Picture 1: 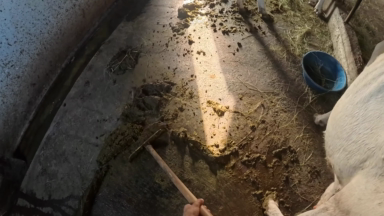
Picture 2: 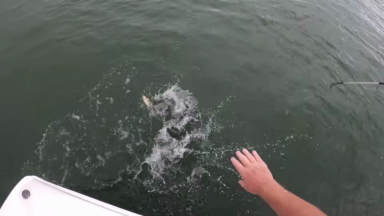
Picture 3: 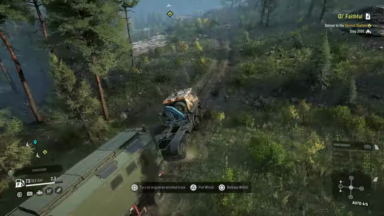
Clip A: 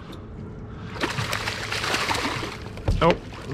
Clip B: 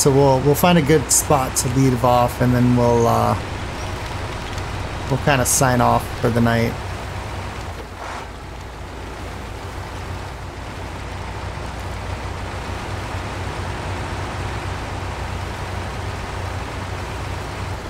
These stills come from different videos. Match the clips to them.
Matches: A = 2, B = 3